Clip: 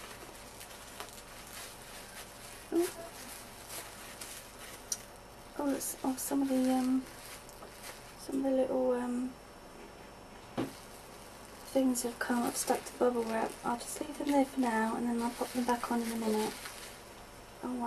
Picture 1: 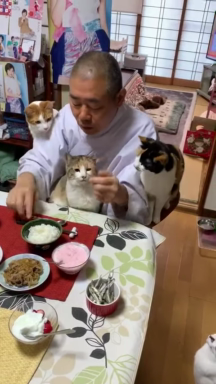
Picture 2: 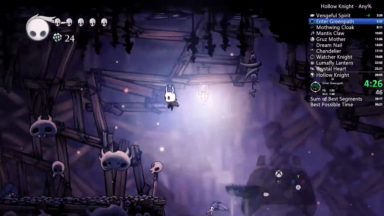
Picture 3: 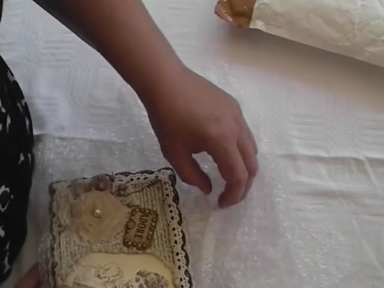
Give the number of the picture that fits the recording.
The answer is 3